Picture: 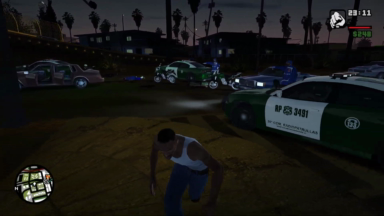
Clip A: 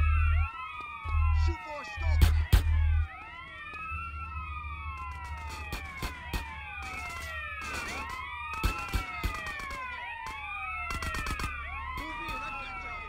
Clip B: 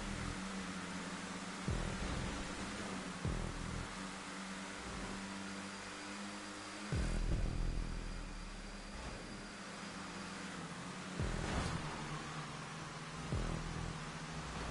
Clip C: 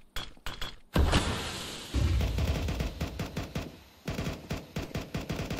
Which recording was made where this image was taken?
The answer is A